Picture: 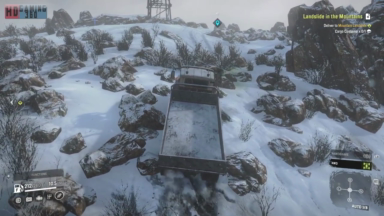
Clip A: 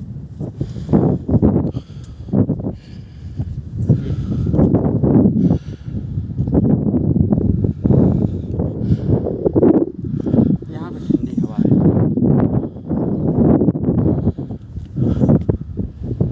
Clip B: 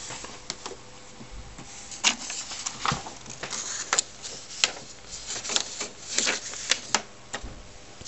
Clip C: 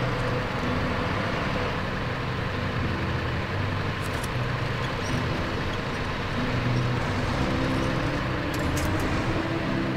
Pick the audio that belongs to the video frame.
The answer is C